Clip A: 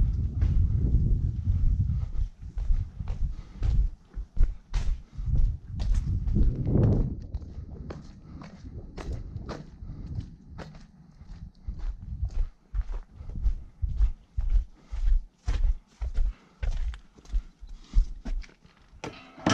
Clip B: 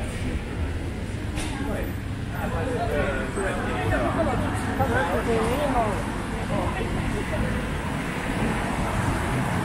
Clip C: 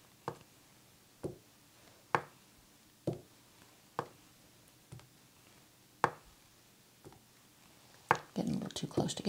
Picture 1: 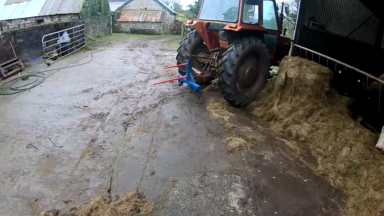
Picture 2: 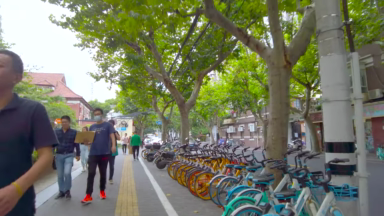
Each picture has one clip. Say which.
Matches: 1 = A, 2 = B